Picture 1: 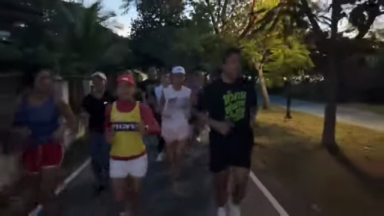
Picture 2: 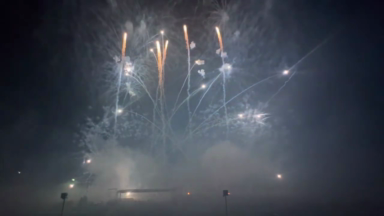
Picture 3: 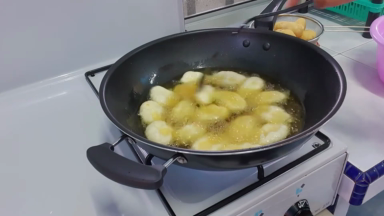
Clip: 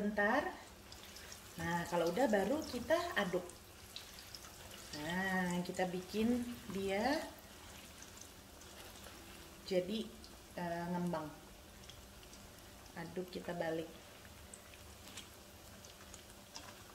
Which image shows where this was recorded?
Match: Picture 3